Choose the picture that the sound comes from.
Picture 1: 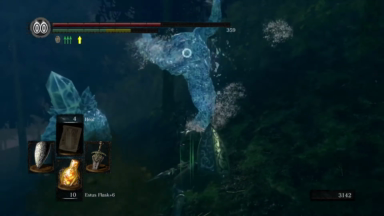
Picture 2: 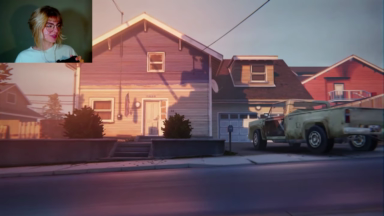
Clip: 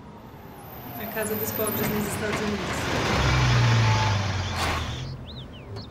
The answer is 2